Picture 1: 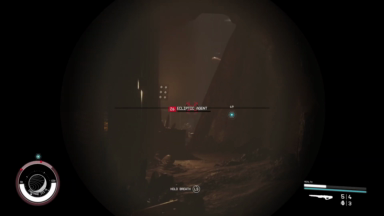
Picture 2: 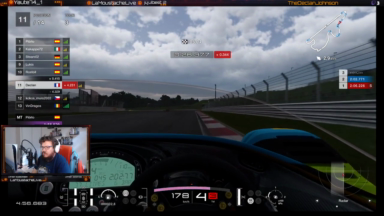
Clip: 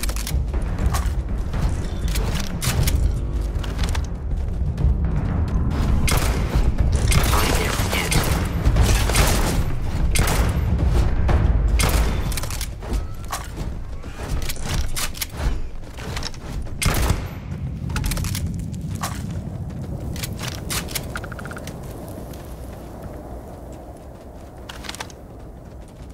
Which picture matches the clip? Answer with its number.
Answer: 1